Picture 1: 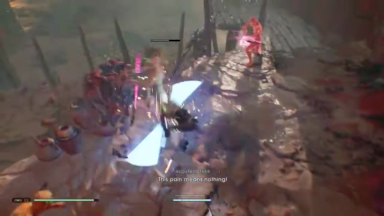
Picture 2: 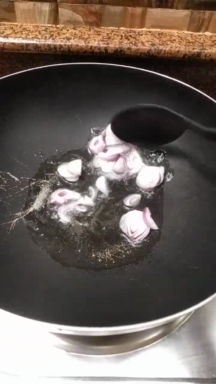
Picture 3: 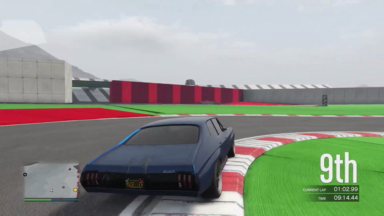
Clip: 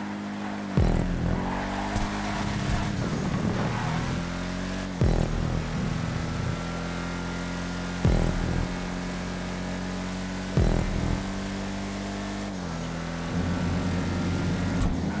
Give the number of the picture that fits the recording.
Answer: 3